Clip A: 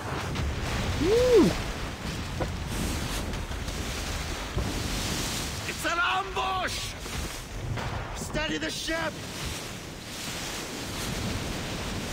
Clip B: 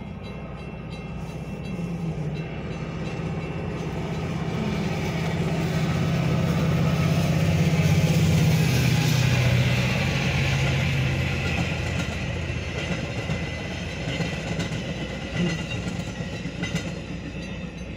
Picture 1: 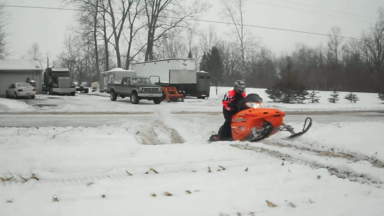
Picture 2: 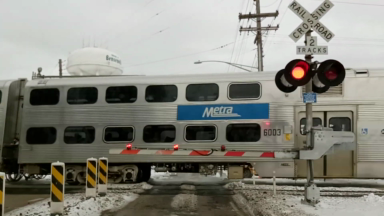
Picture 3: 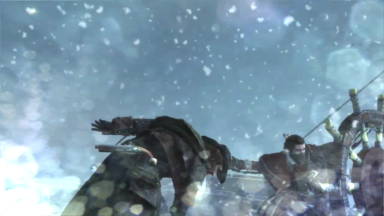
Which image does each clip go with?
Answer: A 3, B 2